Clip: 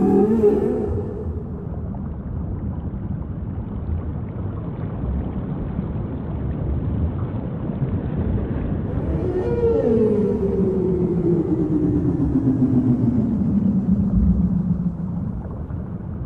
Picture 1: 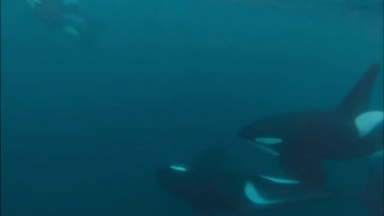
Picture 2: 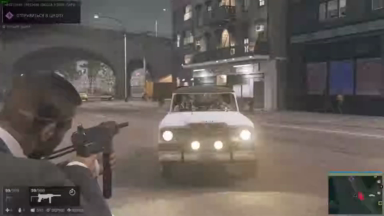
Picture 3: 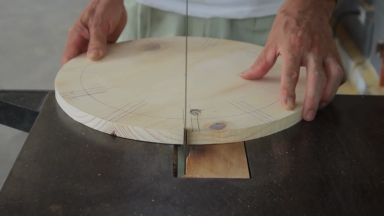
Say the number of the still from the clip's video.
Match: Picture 1